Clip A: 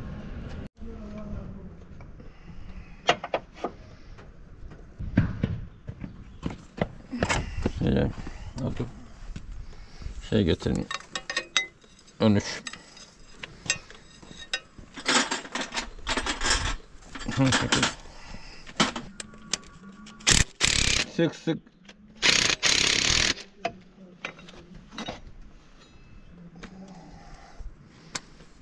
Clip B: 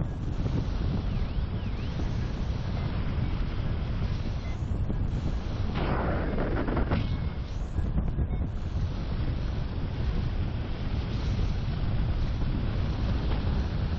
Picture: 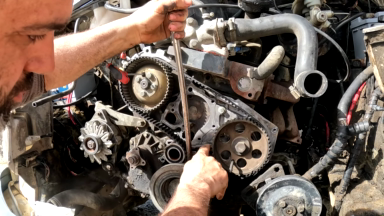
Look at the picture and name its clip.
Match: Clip A